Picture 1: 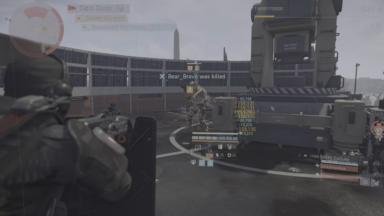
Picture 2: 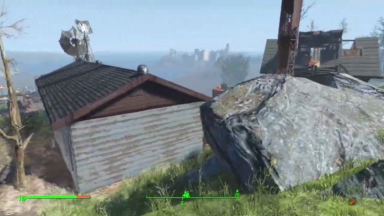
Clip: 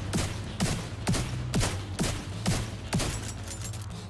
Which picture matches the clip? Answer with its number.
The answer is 1